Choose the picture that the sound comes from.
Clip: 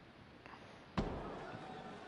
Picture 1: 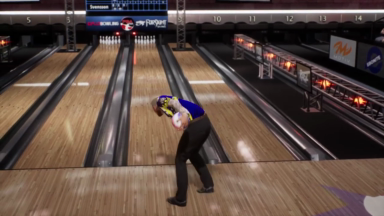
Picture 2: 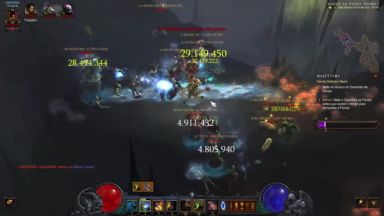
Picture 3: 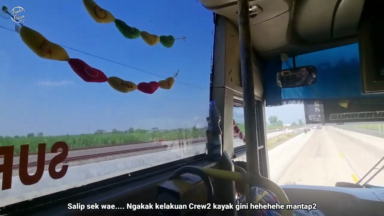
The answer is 1